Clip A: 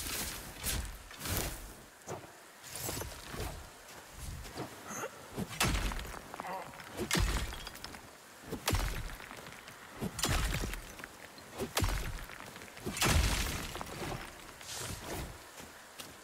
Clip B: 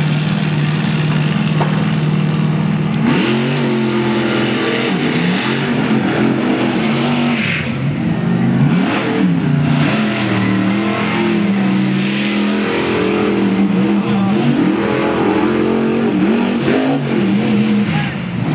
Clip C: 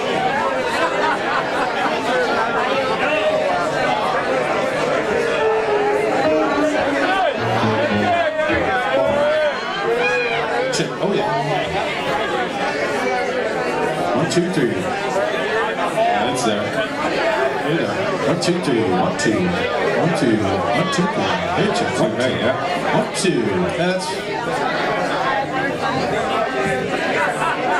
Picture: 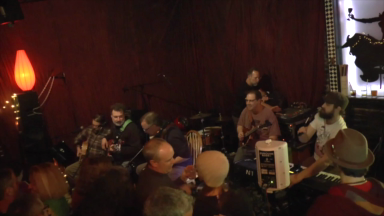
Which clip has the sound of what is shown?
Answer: C